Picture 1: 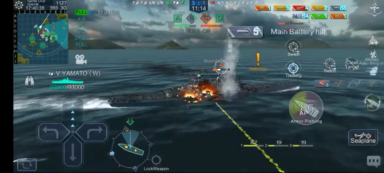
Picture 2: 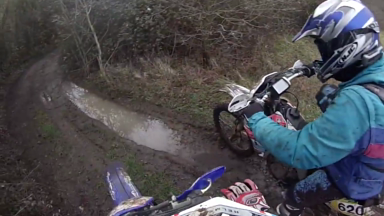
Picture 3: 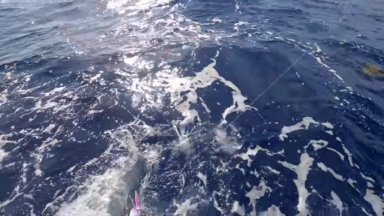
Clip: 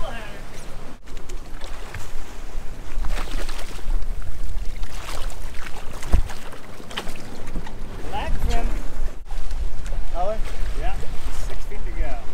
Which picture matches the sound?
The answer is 3